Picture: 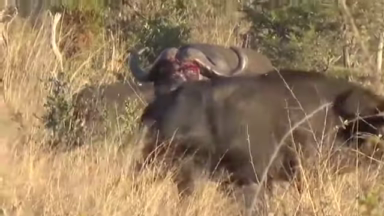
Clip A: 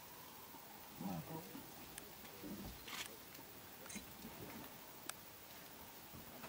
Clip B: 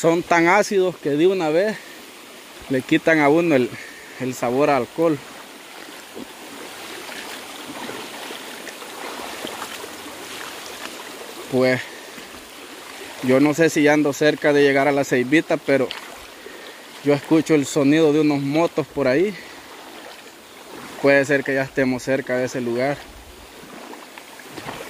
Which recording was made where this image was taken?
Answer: A